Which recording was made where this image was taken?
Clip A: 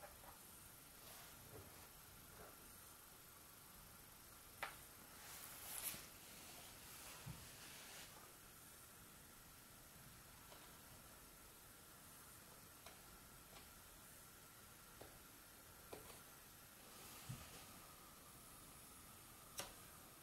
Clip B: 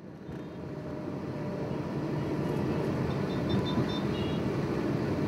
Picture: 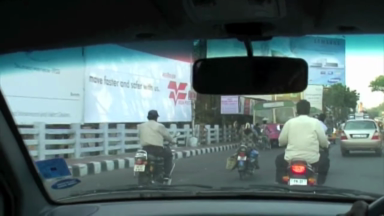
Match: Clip B